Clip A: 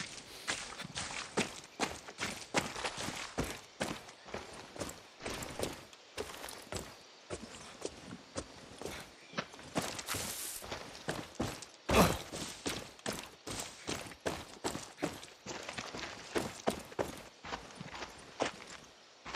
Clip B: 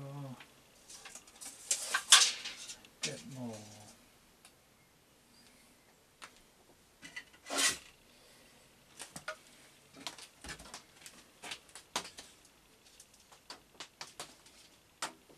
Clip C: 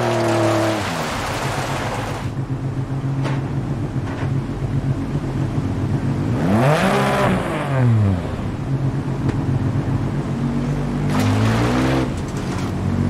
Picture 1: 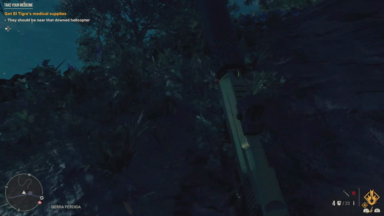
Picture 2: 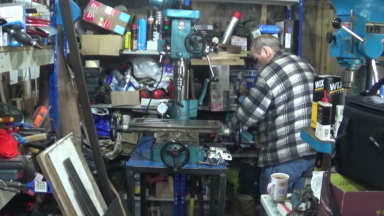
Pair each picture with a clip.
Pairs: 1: A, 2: B